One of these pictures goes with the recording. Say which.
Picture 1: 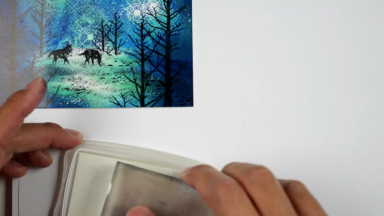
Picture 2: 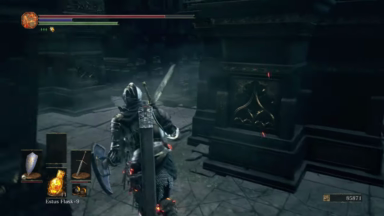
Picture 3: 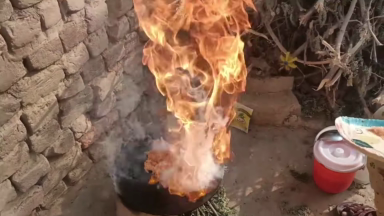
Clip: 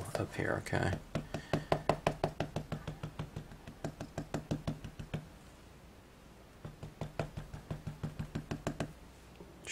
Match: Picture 1